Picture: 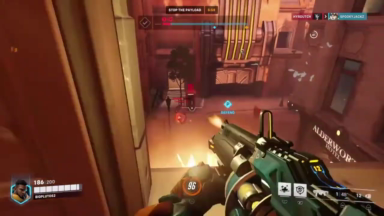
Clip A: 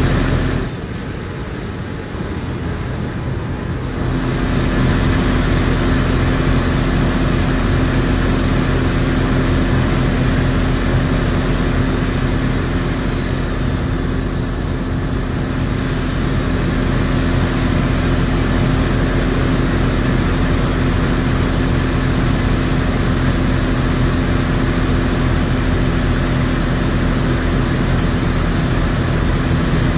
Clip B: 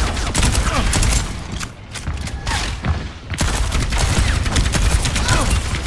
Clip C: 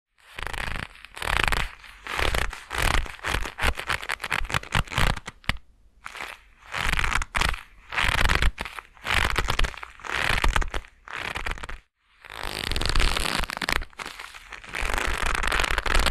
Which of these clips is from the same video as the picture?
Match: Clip B